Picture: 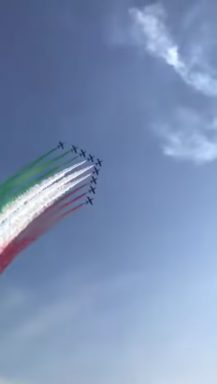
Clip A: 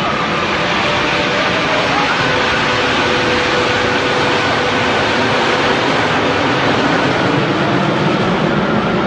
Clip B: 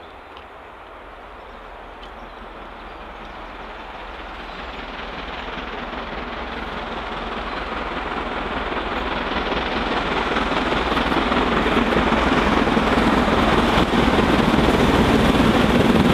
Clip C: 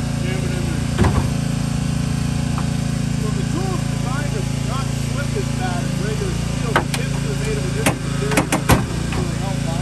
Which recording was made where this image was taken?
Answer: A